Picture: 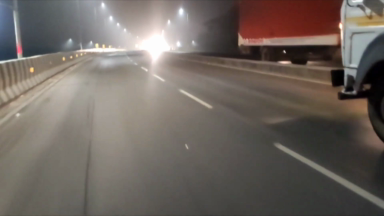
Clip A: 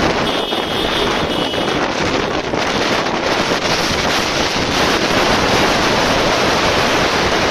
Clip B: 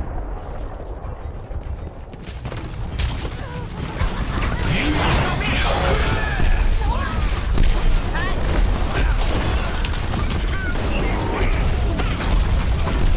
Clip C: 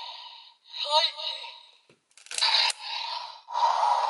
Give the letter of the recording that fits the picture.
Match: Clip A